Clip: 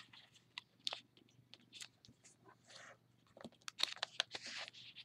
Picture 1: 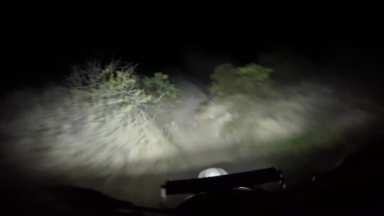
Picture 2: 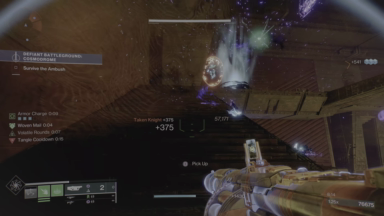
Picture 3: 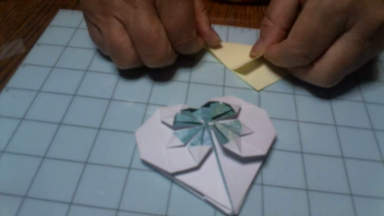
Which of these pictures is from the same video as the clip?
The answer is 3